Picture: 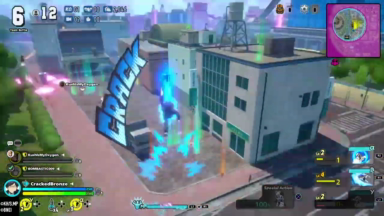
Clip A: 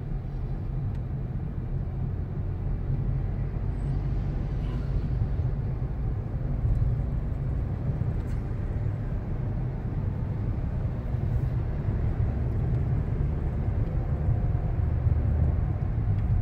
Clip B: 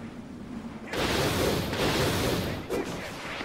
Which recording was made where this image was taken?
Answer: B